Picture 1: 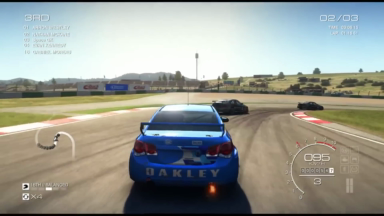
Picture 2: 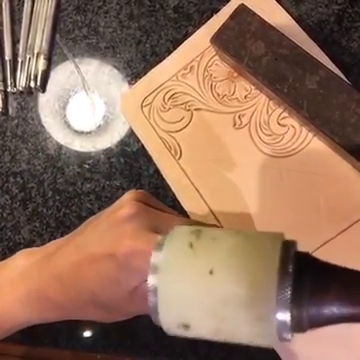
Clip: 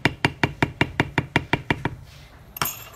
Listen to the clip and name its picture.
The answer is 2